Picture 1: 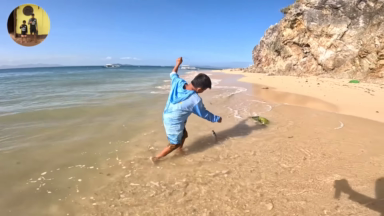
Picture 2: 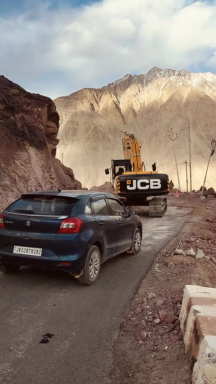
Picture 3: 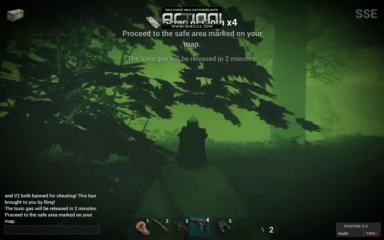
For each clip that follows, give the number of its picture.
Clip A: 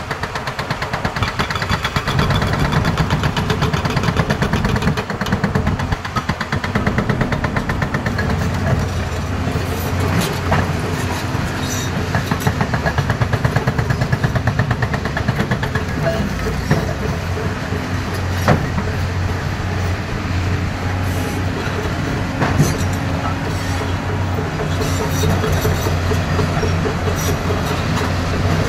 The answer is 2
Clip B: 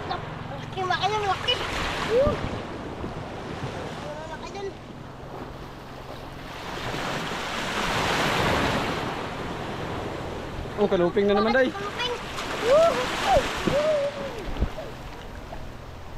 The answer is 1